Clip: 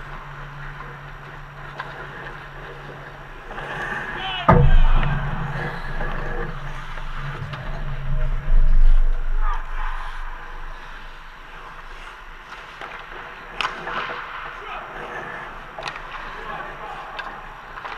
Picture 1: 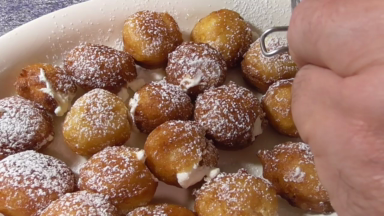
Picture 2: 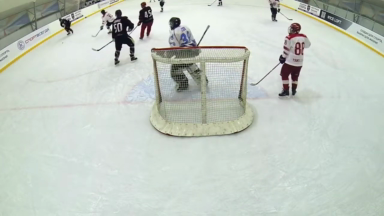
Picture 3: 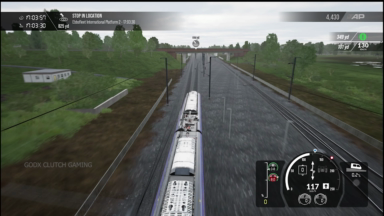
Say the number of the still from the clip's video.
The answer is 2